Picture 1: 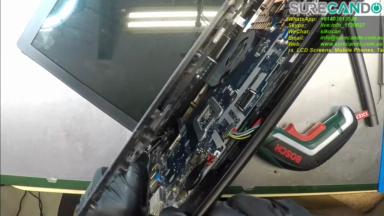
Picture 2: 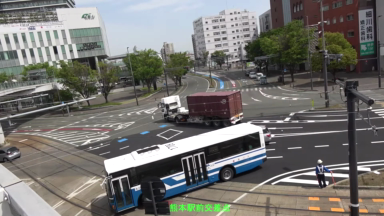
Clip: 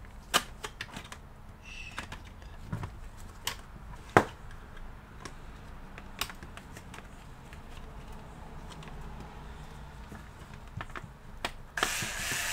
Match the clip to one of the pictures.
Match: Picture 1